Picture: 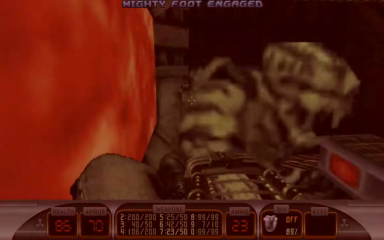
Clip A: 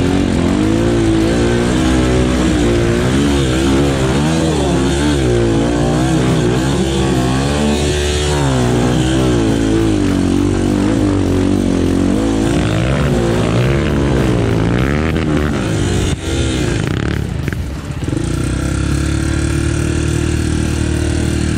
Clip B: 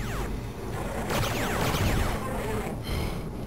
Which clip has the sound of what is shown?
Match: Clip B